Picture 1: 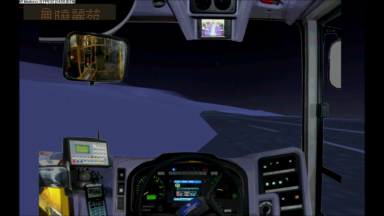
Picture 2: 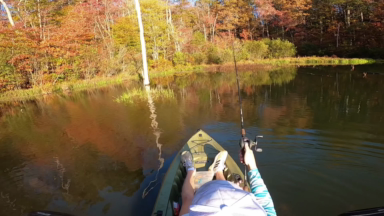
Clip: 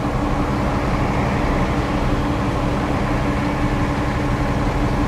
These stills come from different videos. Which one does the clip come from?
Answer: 1